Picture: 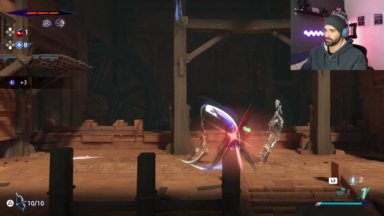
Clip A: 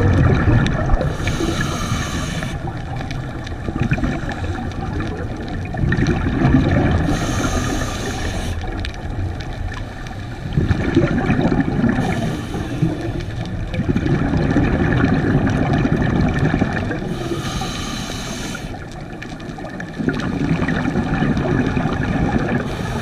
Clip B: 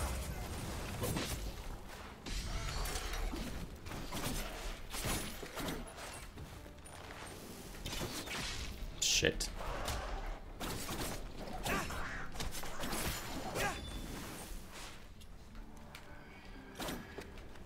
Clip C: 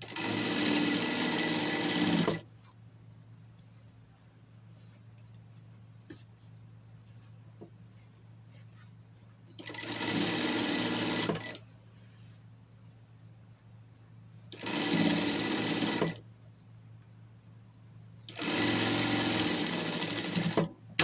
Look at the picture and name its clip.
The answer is B